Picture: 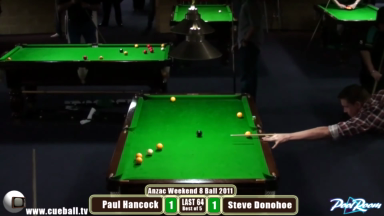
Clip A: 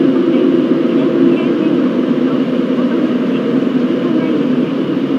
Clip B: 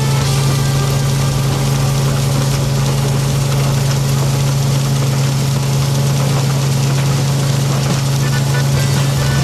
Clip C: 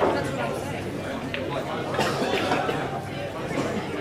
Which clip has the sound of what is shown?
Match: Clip C